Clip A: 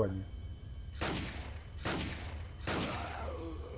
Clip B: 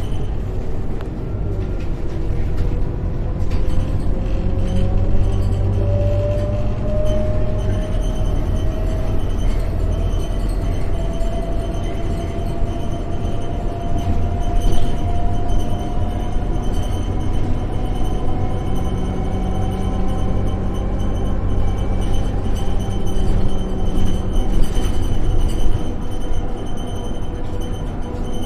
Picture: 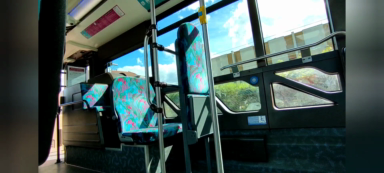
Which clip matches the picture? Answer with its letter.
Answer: B